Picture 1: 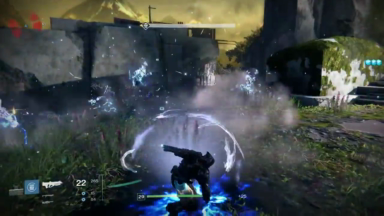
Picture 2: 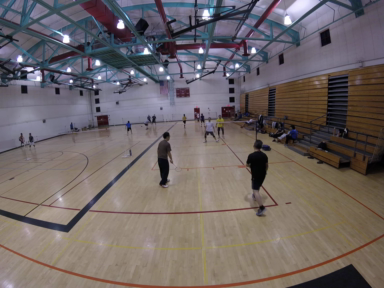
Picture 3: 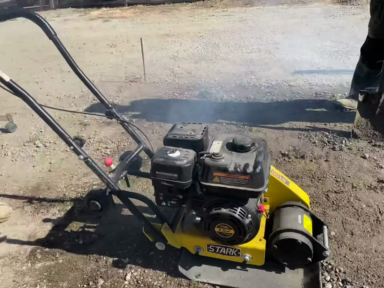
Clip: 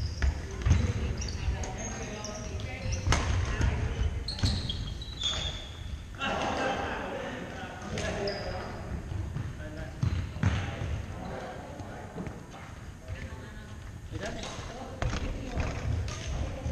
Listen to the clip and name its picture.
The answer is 2